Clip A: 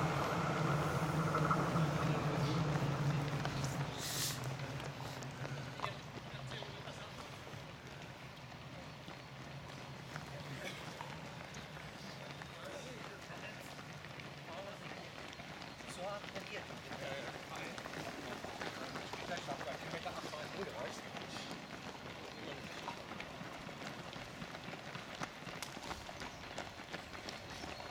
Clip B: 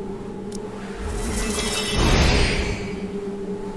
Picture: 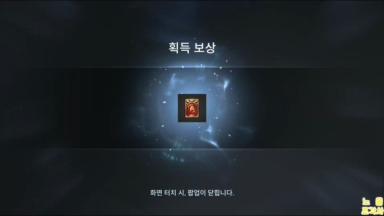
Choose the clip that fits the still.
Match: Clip B